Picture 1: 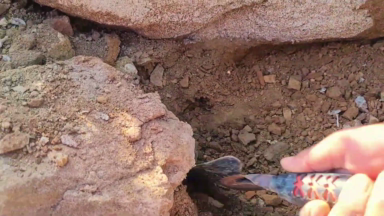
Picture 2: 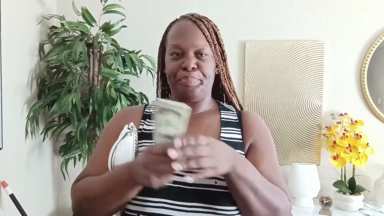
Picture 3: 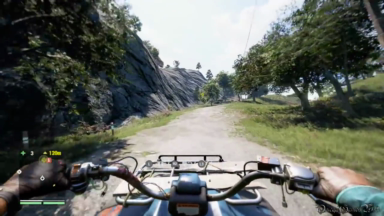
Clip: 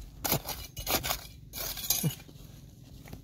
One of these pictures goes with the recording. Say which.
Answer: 1